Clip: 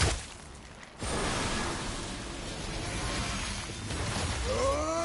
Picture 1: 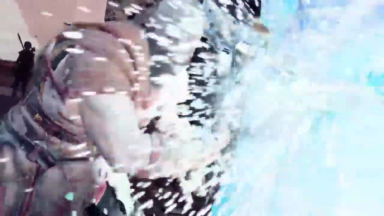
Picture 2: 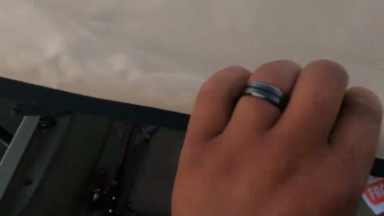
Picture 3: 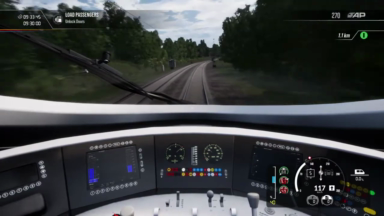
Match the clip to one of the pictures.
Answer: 1